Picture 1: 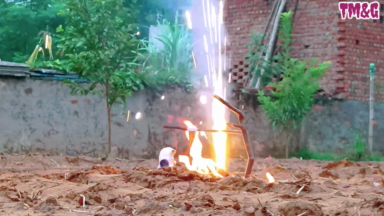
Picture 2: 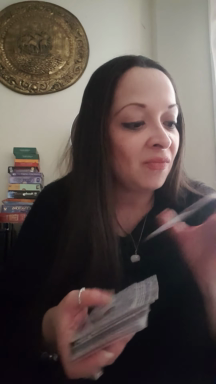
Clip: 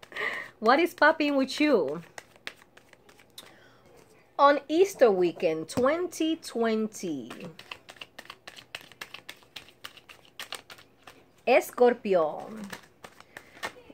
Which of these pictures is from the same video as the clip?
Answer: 2